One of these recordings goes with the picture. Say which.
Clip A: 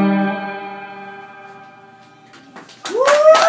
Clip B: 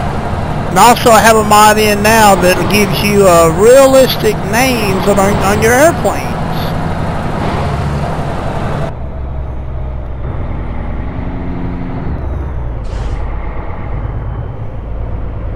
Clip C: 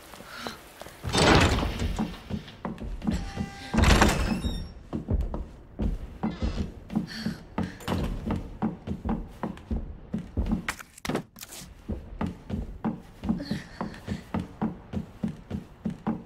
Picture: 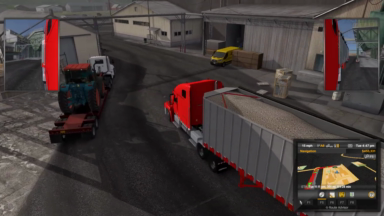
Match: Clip B